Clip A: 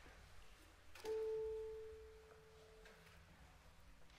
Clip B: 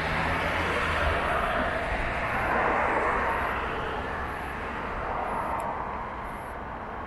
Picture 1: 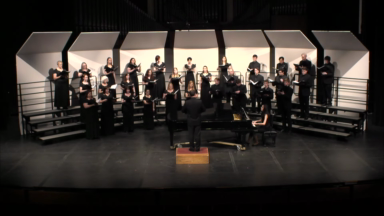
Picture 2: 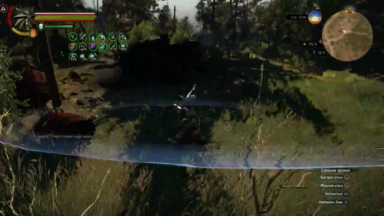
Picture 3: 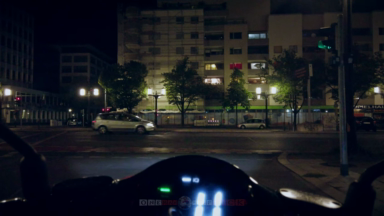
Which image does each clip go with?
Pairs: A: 1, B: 3